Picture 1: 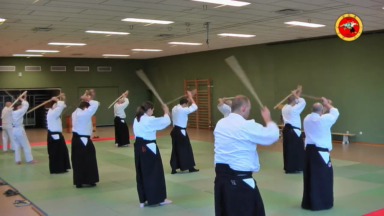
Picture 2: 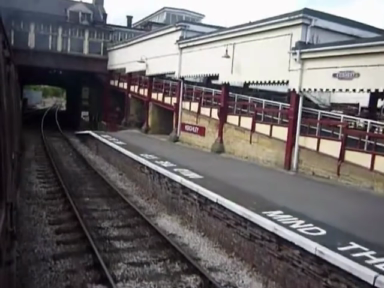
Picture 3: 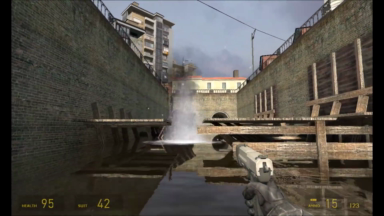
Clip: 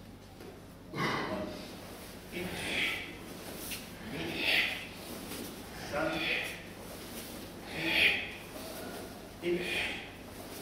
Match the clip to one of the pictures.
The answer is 1